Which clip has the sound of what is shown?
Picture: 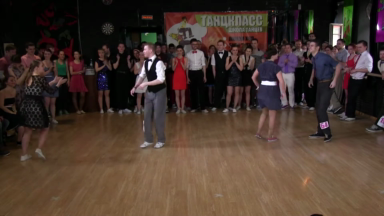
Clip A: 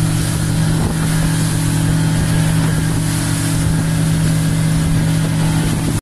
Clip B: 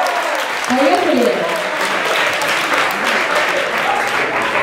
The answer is B